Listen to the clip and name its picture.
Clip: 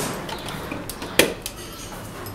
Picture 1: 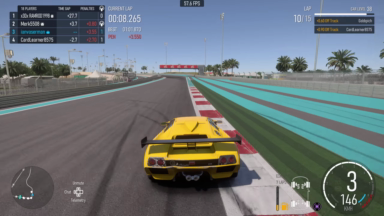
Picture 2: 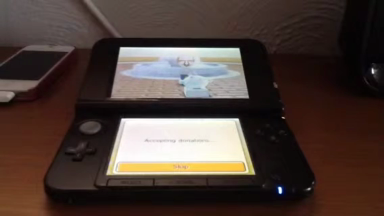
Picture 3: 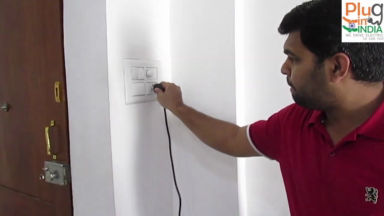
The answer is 3